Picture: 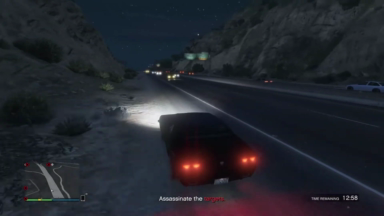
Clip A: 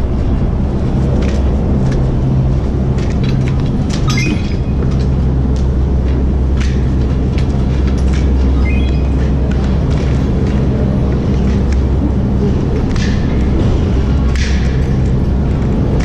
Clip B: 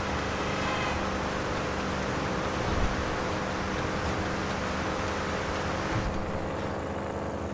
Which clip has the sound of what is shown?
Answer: B